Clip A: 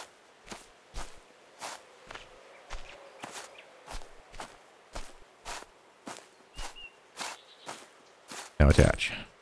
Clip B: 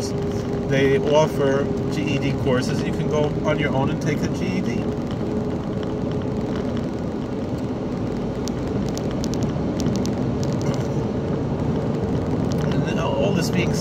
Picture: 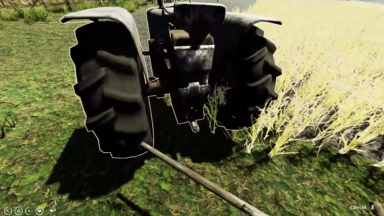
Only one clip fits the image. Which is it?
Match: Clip A